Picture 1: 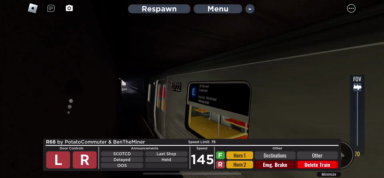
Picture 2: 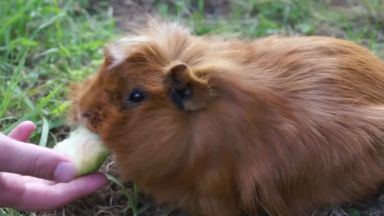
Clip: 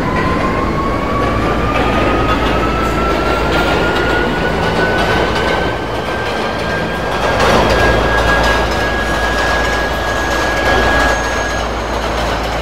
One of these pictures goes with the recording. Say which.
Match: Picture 1